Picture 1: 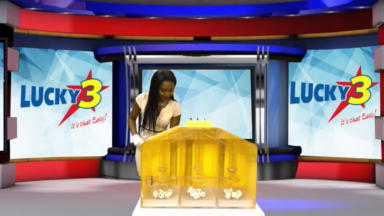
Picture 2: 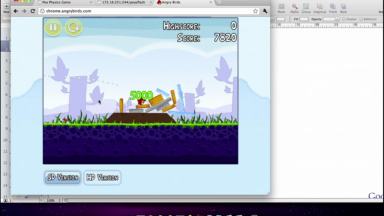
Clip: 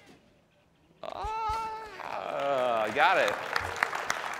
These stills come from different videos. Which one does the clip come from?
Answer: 2